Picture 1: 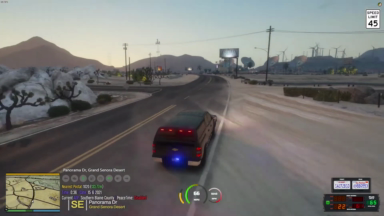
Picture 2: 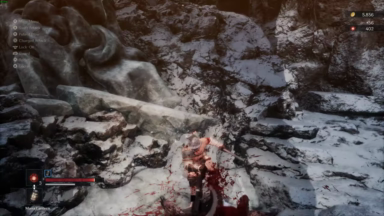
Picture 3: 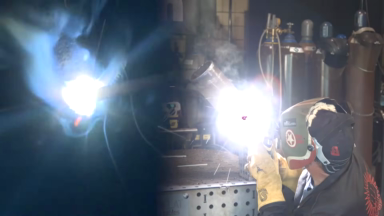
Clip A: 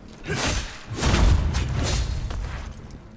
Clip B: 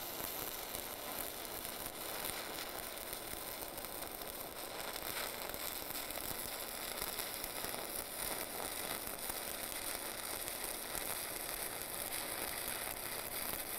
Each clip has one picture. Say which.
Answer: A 2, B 3